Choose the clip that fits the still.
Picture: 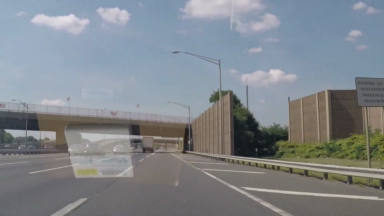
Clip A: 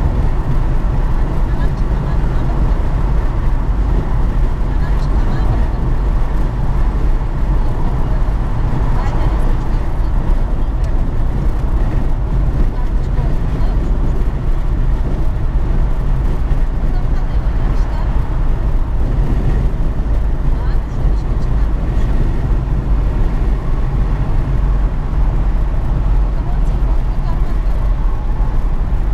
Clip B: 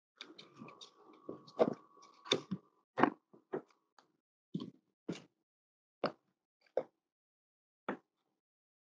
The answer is A